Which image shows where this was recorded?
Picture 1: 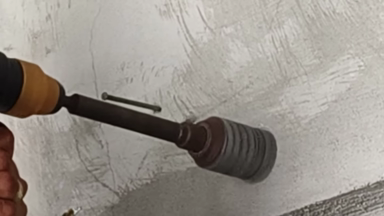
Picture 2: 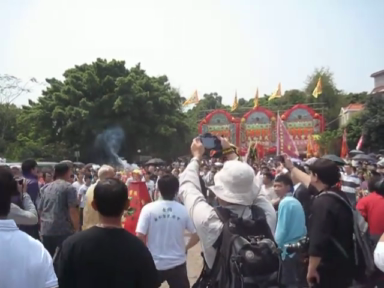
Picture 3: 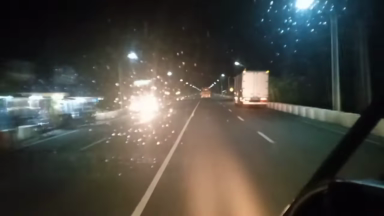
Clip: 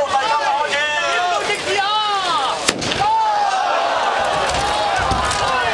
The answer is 2